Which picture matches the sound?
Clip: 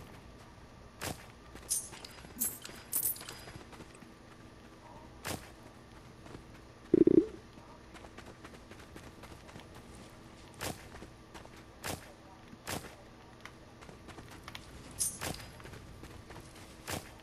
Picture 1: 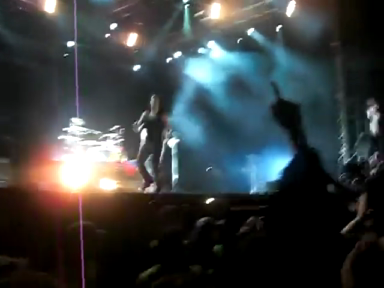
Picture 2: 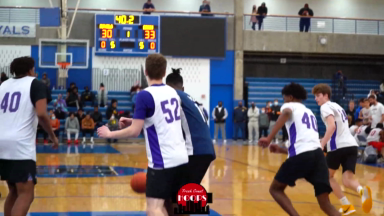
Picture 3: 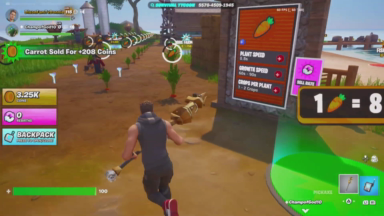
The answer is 3